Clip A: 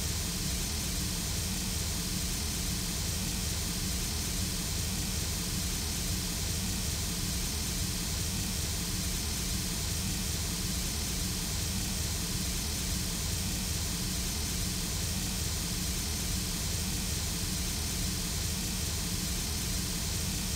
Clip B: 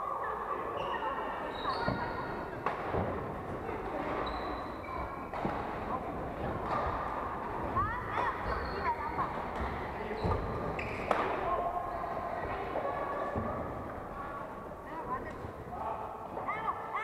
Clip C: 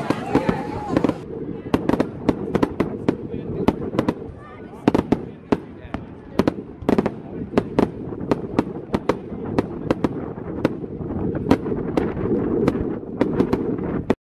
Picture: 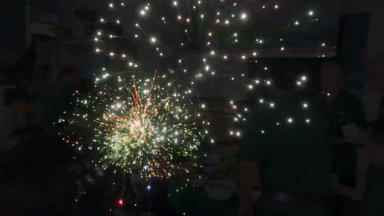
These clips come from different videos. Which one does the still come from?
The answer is C